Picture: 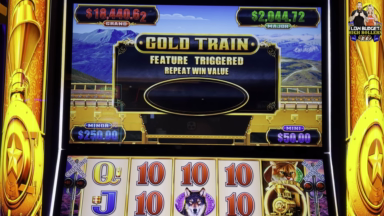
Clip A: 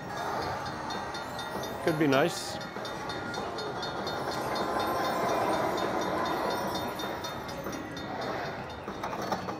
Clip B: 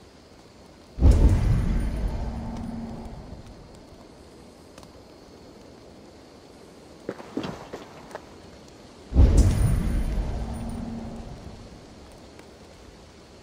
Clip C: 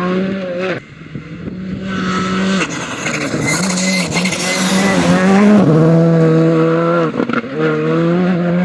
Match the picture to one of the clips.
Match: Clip A